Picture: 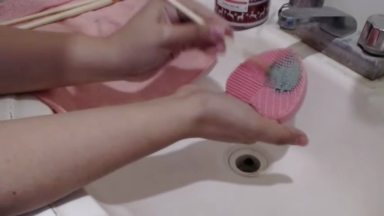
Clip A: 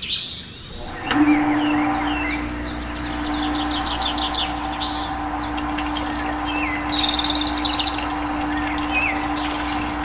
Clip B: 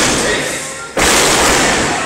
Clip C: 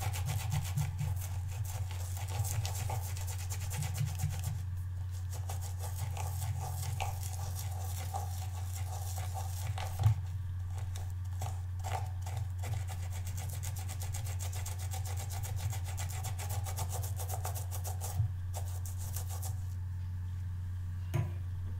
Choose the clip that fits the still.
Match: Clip C